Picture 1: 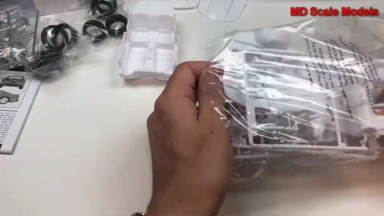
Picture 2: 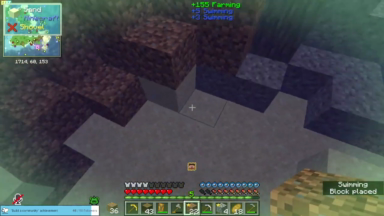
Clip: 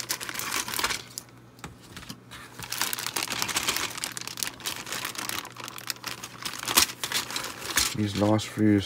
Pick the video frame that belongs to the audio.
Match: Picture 1